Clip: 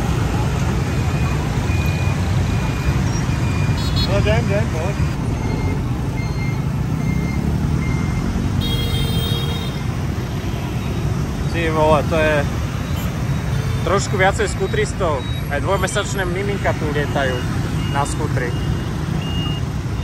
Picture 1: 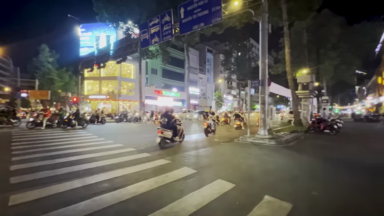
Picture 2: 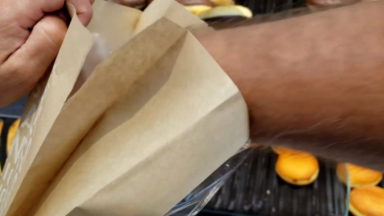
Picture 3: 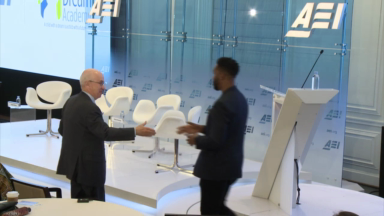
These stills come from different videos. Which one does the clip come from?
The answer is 1